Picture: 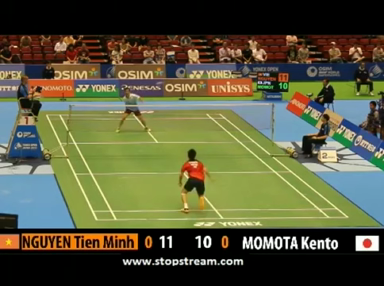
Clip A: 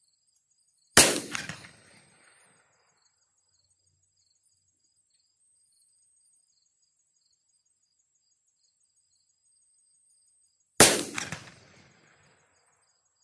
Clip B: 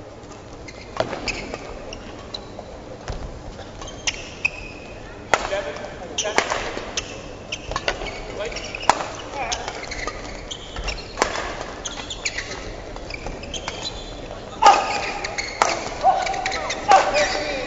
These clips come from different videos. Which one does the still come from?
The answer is B